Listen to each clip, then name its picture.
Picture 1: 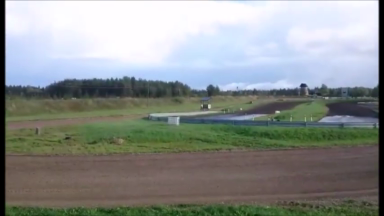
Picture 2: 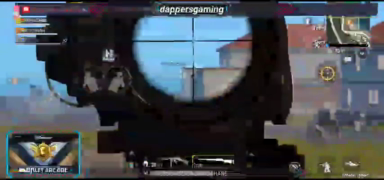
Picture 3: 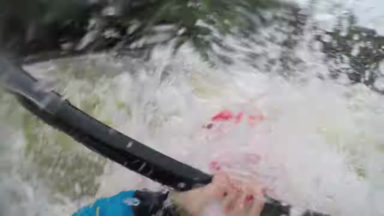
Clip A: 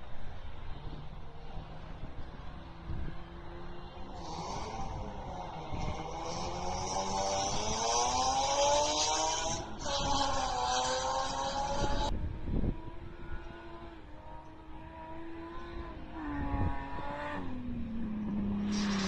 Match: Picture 1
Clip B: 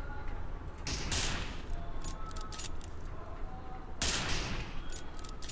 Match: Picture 2